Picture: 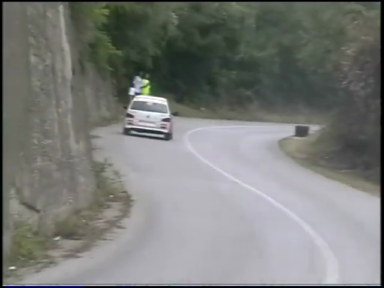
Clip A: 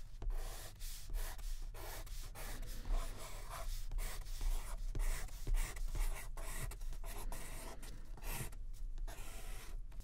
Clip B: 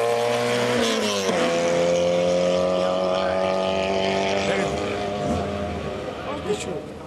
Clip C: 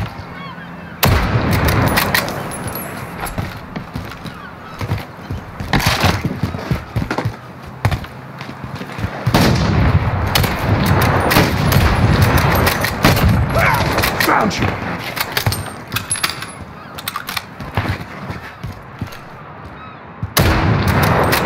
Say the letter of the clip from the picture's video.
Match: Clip B